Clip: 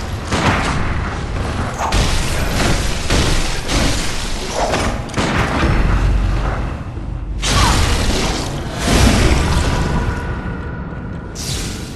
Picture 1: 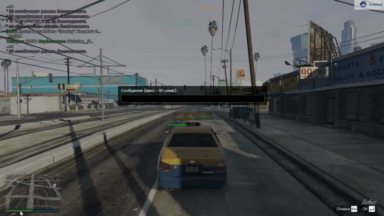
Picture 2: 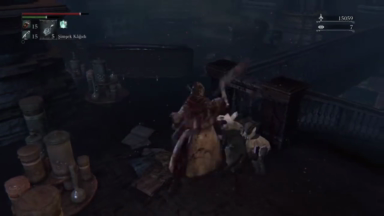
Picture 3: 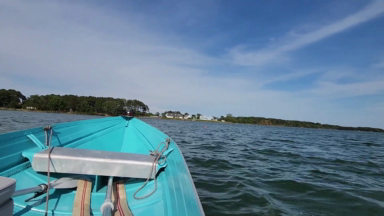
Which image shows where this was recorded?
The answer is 2